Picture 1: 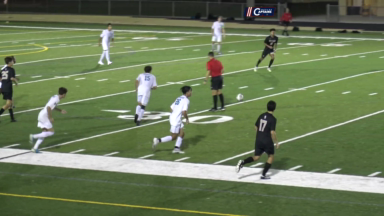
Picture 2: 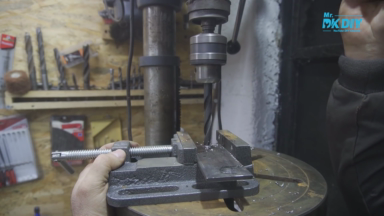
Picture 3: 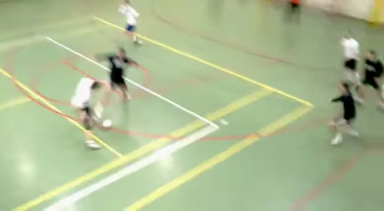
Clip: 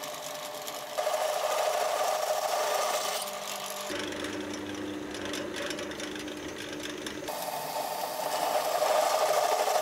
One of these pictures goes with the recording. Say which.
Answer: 2